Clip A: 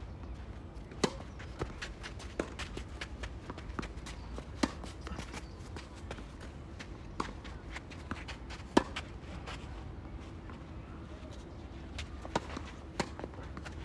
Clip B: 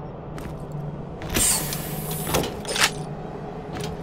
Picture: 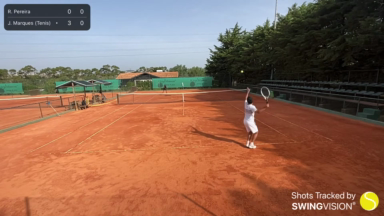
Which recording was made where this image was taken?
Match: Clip A